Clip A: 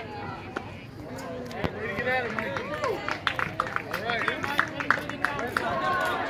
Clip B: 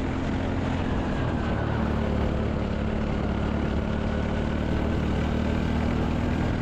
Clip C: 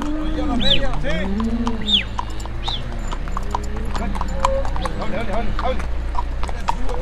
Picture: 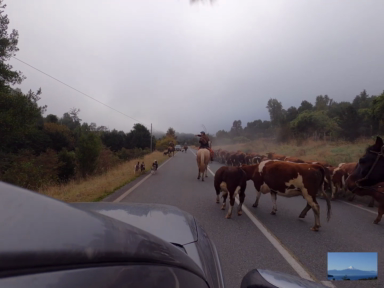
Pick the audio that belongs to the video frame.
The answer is C